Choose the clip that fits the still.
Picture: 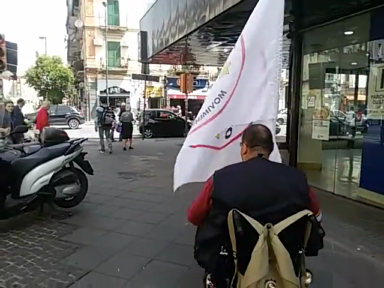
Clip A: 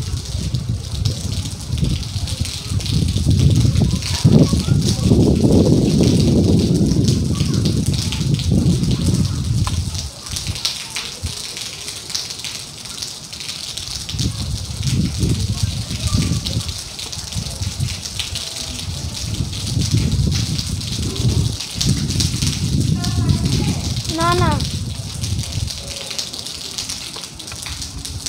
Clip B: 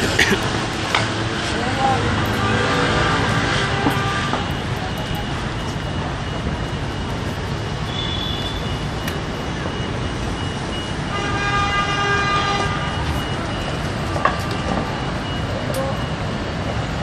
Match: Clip B